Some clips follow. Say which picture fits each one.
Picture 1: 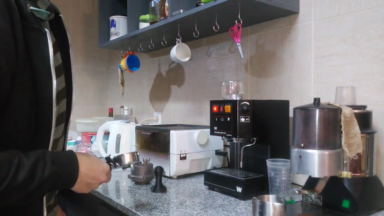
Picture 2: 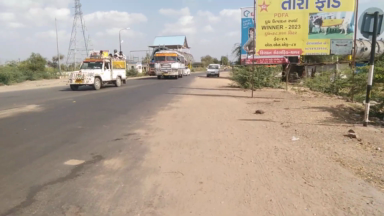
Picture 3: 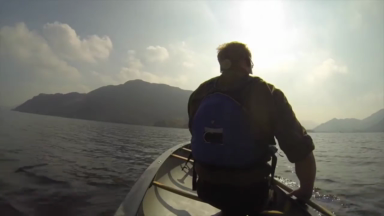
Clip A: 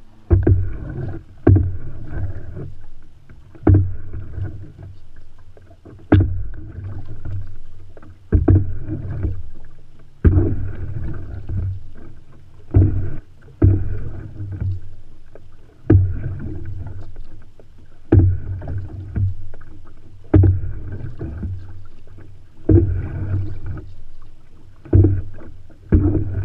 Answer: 3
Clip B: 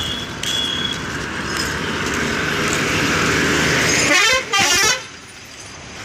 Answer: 2